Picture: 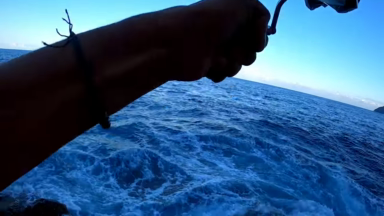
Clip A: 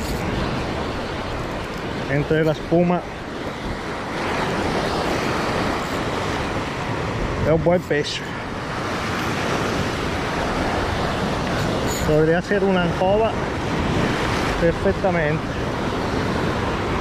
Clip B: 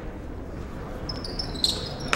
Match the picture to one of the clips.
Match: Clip A